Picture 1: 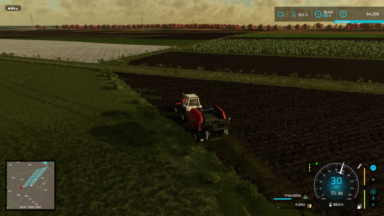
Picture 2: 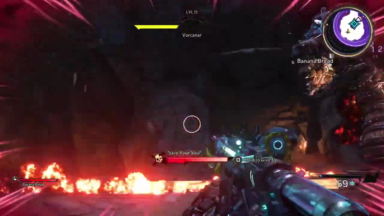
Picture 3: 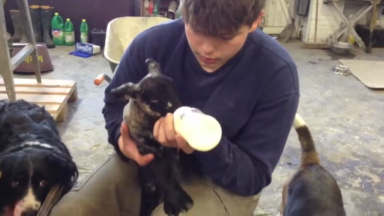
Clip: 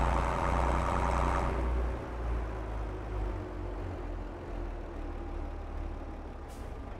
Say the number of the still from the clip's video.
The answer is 1